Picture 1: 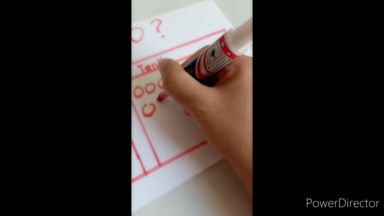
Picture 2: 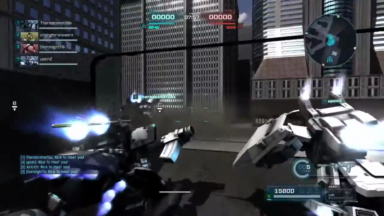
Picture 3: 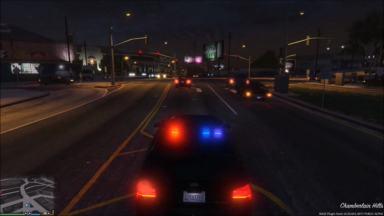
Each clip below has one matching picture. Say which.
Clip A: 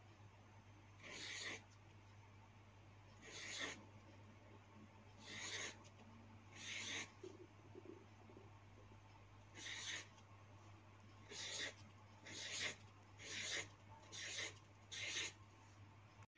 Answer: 1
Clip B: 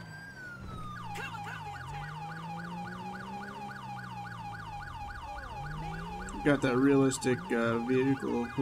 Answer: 3